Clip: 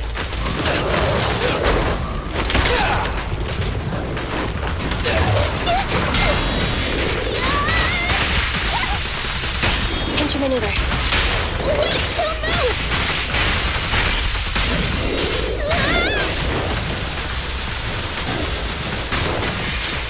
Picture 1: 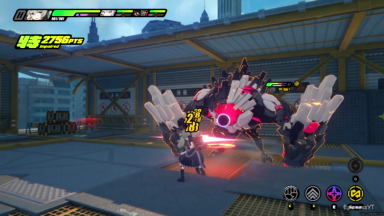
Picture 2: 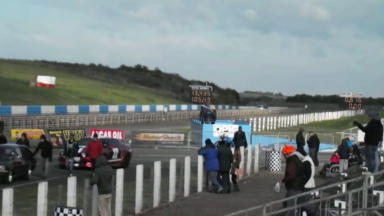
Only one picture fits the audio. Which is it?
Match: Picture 1